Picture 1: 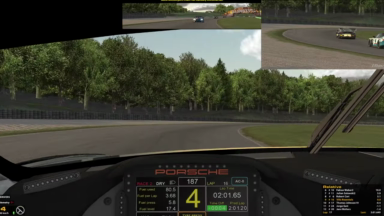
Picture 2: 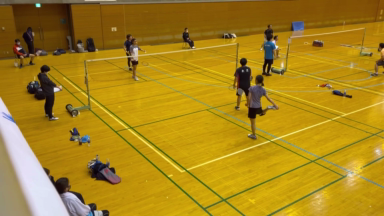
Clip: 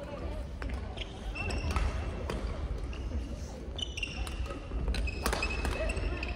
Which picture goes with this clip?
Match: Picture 2